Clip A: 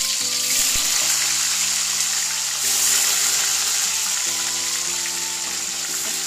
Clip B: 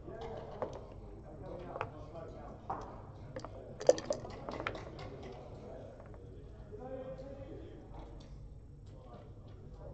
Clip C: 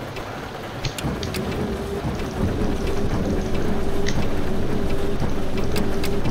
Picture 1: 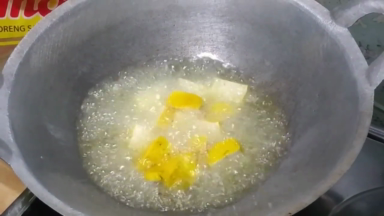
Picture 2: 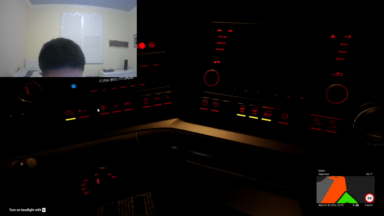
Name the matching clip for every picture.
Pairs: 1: A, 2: C